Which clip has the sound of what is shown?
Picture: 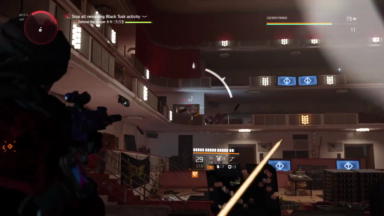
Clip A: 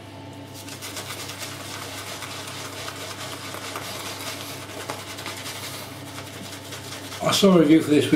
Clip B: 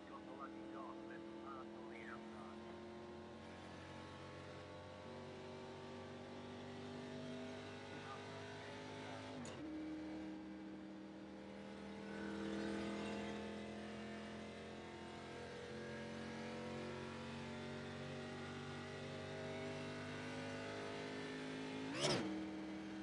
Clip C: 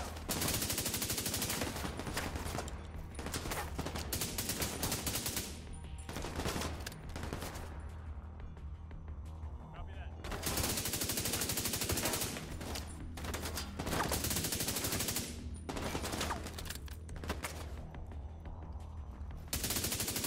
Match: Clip C